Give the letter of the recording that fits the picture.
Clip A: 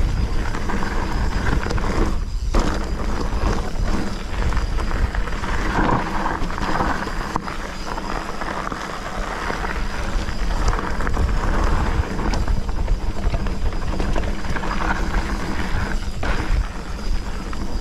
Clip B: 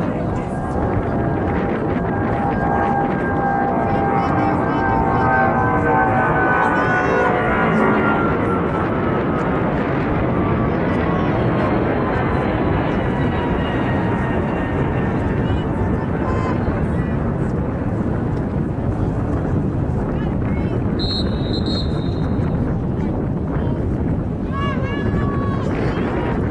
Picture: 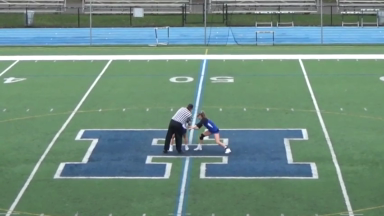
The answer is B